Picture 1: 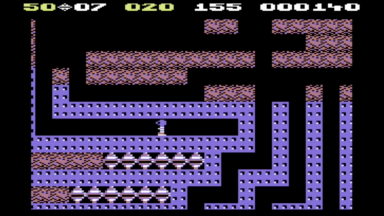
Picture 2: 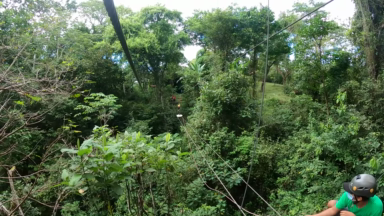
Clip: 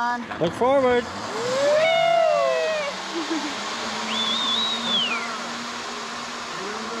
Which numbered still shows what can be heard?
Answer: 2